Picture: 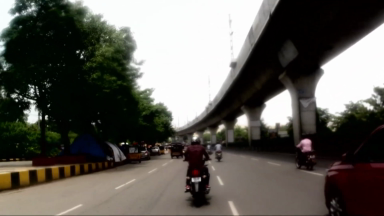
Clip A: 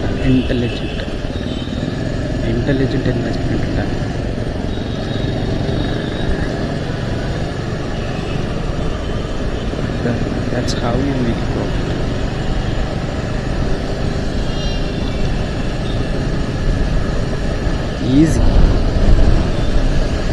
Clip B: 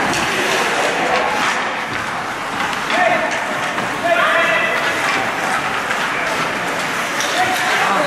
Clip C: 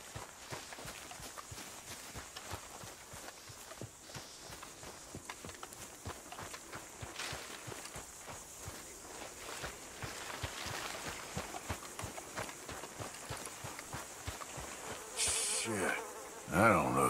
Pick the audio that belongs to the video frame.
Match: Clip A